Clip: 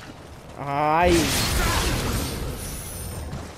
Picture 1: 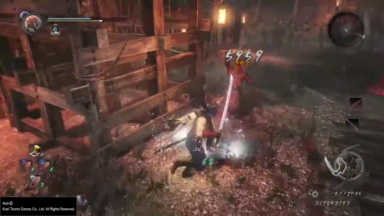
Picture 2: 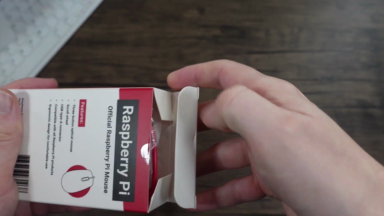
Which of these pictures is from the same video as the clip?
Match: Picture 1